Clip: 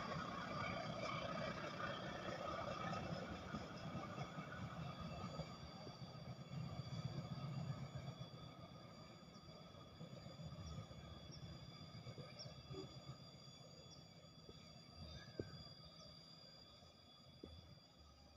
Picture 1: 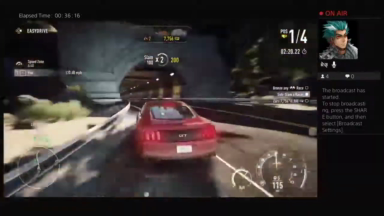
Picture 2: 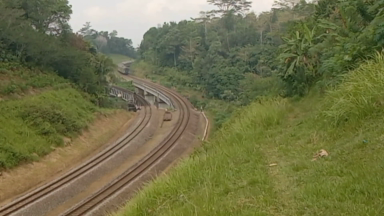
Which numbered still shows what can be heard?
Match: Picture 2